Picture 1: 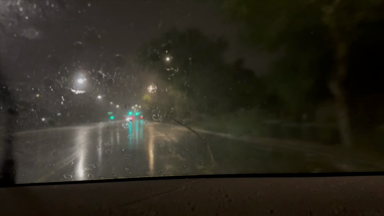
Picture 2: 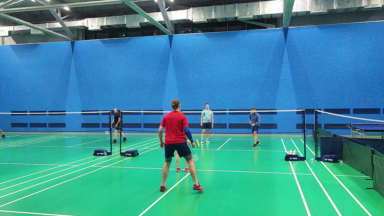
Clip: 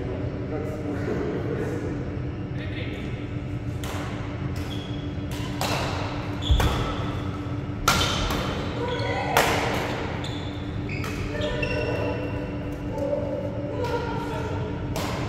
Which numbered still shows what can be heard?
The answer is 2